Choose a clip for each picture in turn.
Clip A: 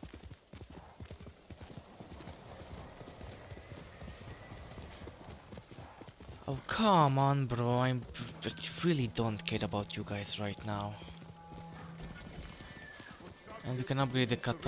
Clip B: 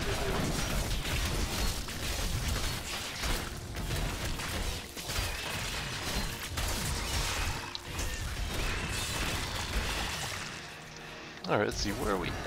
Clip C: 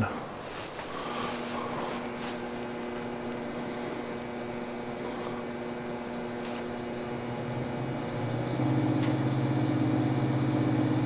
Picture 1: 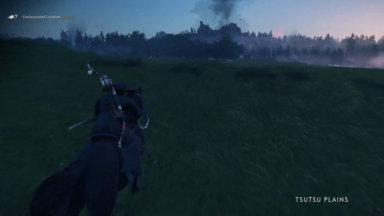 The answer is A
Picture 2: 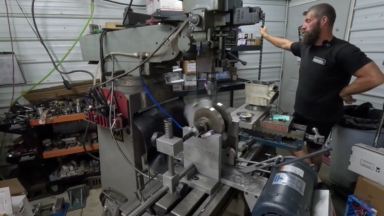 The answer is C